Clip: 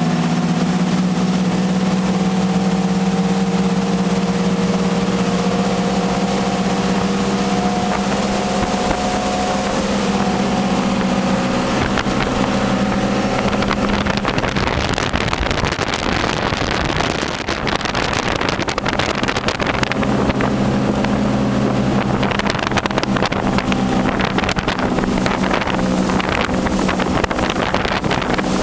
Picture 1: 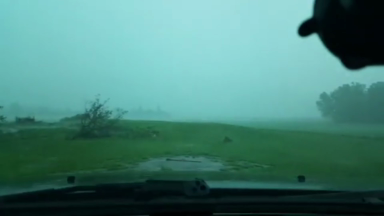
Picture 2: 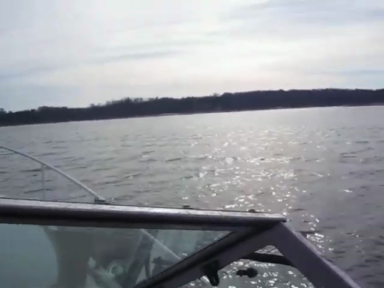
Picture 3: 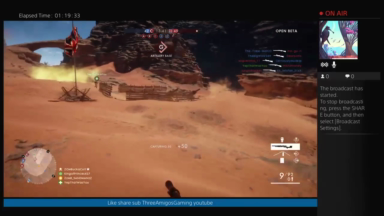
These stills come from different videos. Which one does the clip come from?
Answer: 2